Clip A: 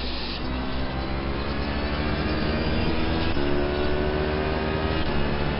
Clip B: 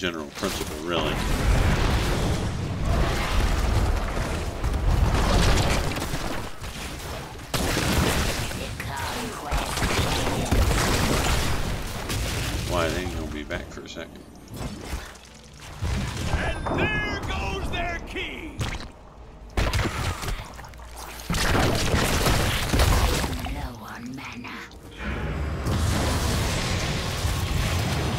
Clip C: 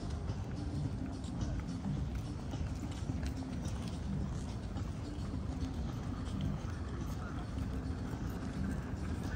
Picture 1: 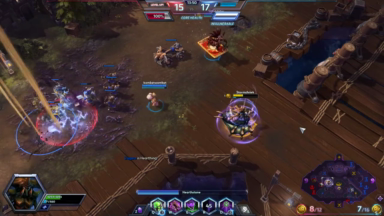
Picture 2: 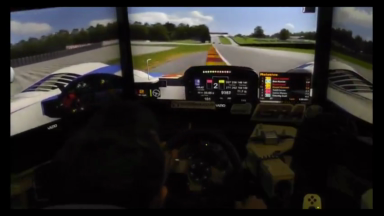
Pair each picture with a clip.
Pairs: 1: B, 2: A